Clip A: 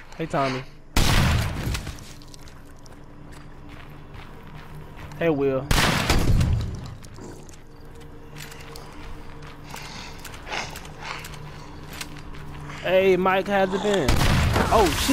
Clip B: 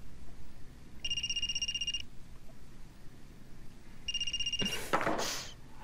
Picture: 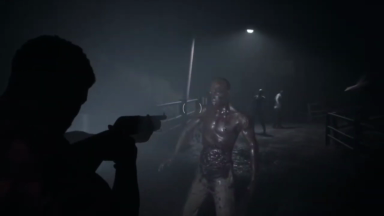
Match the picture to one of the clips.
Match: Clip A